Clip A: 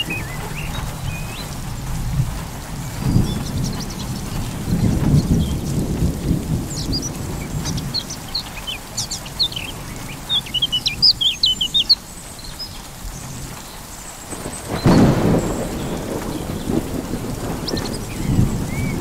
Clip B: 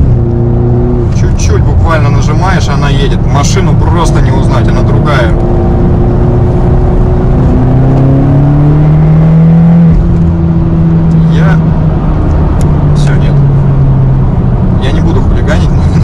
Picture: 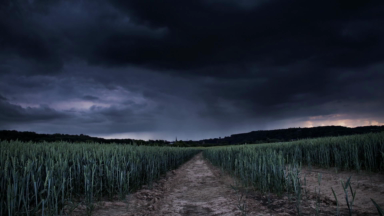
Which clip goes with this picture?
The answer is A